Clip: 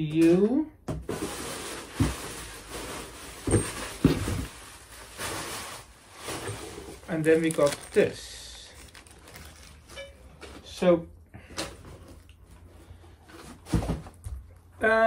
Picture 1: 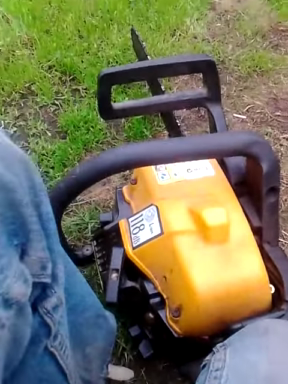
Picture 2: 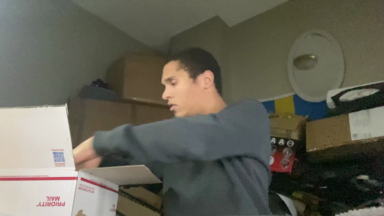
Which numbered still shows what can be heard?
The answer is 2